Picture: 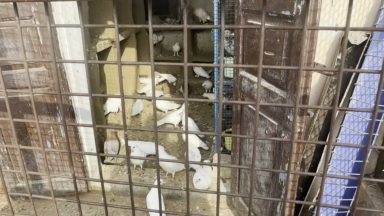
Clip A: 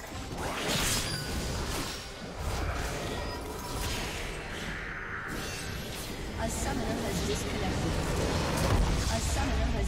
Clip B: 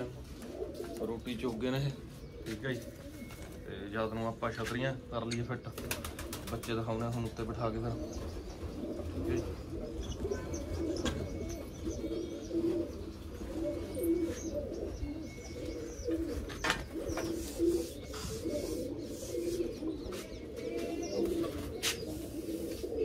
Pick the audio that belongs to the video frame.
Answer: B